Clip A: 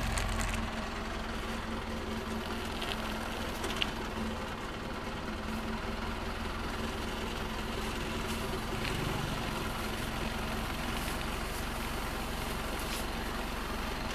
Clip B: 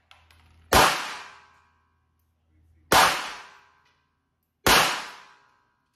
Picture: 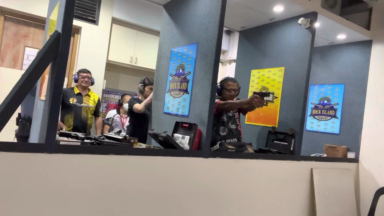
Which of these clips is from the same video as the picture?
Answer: B